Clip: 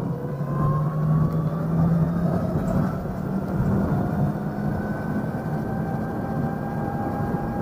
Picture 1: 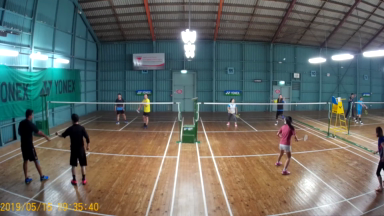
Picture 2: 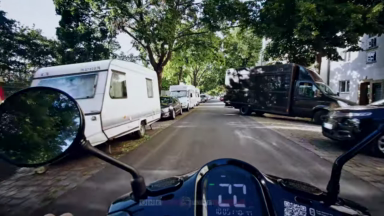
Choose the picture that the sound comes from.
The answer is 2